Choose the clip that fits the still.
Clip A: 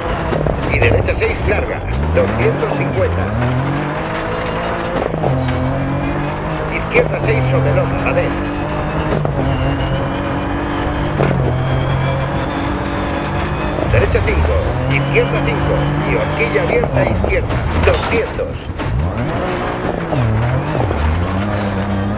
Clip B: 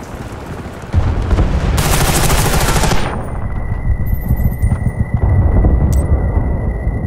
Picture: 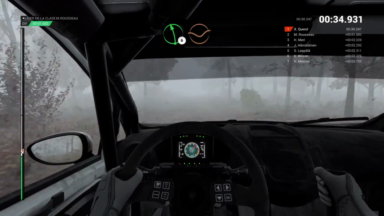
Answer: A